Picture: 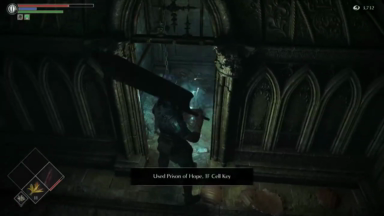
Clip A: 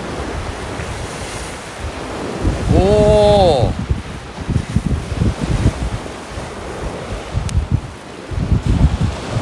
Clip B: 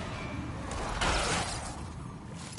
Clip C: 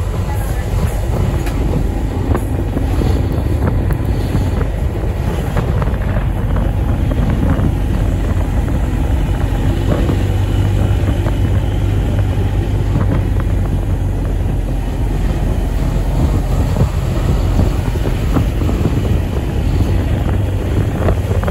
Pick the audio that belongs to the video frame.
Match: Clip B